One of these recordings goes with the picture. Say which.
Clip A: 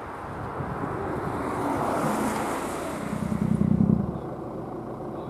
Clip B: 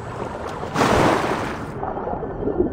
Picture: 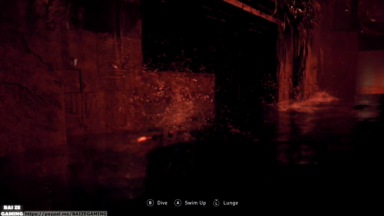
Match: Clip B